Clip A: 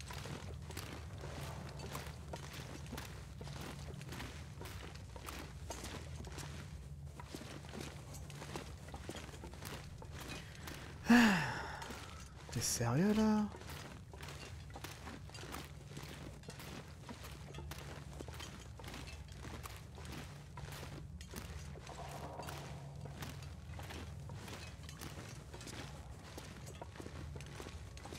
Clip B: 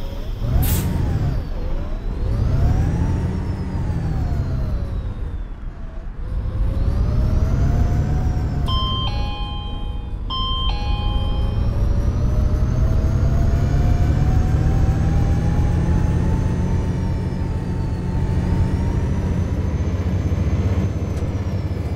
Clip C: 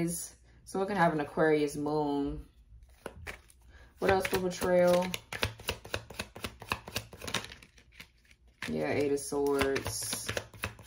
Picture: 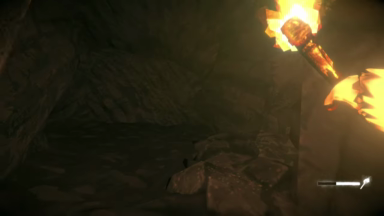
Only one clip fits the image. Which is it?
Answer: A